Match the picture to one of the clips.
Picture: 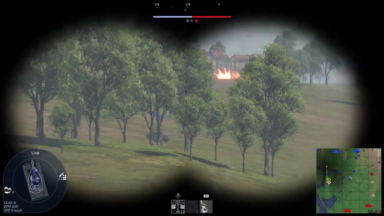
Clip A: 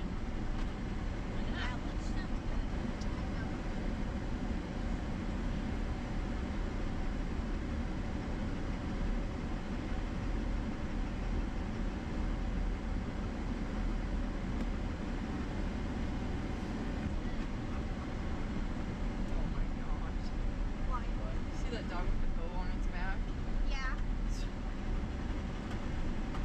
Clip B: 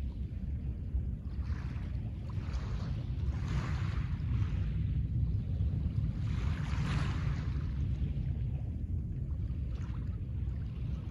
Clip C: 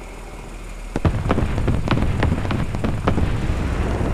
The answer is C